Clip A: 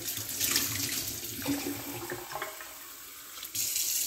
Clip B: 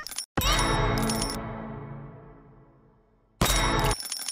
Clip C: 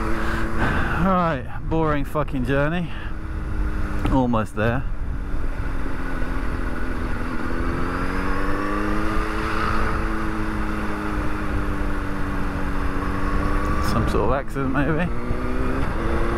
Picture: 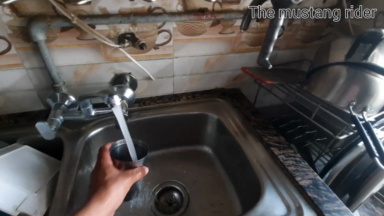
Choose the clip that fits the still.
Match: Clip A